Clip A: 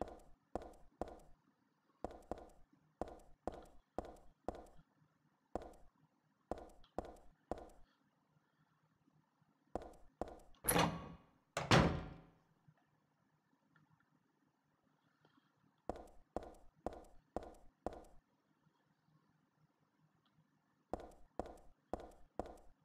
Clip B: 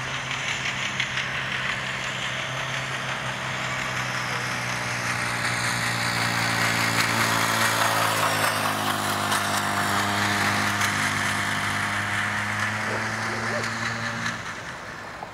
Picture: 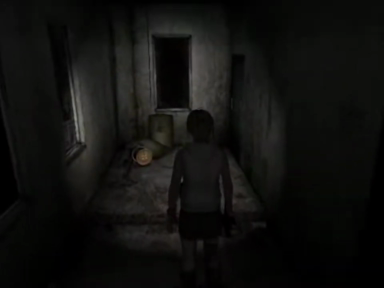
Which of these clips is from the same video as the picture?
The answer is A